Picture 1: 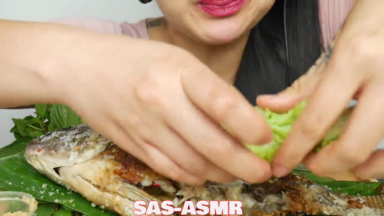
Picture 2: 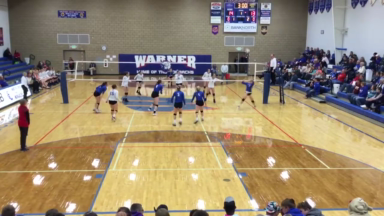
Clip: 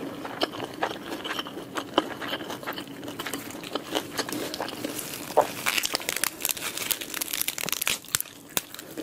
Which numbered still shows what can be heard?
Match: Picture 1